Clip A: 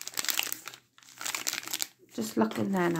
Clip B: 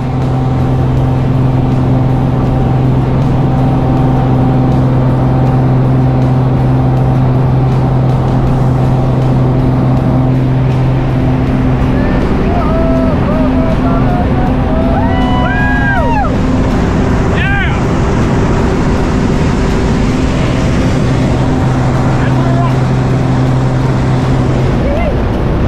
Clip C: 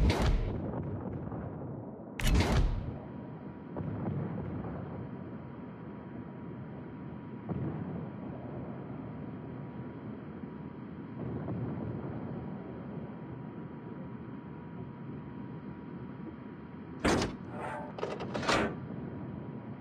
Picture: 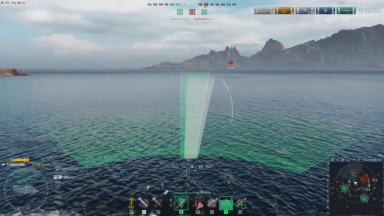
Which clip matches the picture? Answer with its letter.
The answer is C